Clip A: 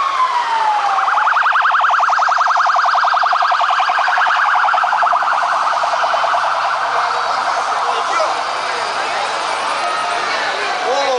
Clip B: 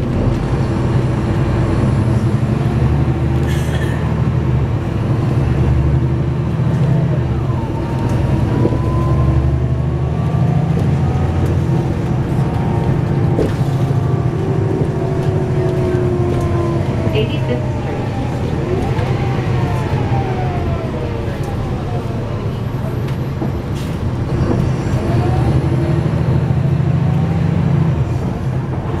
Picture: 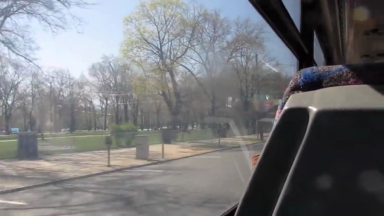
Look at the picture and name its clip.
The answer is B